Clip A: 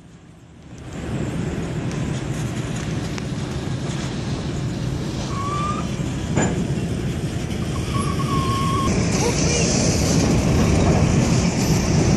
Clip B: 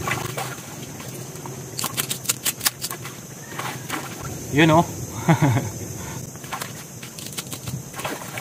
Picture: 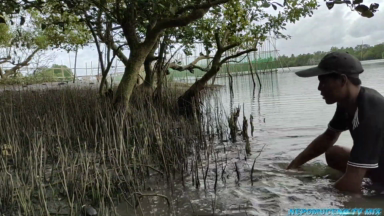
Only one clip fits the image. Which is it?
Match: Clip B